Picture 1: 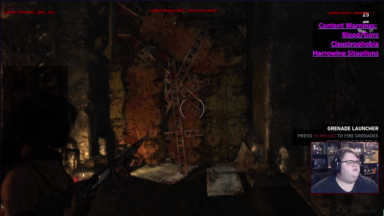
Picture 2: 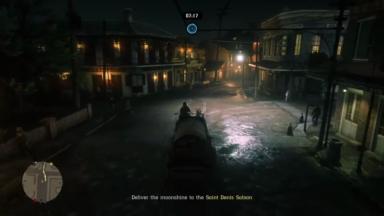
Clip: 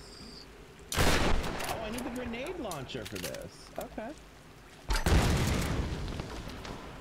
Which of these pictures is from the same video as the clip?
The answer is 1